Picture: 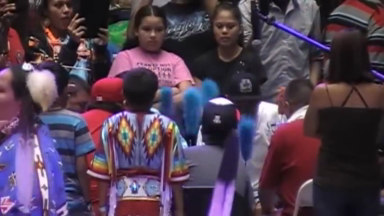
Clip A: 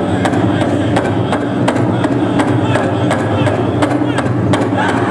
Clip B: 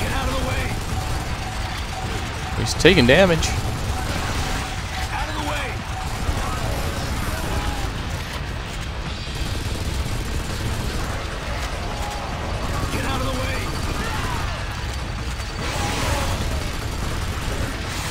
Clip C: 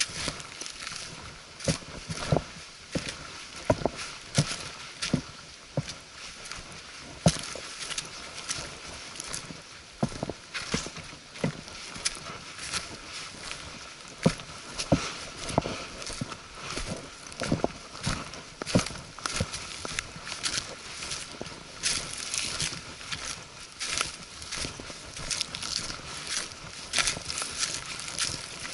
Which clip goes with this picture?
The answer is A